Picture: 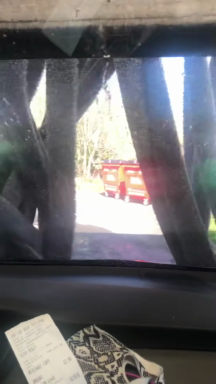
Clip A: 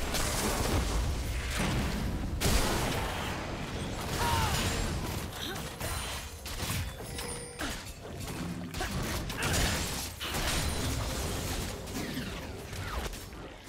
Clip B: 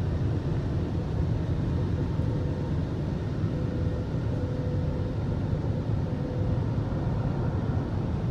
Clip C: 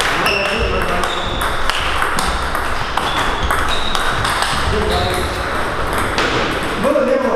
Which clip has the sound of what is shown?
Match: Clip B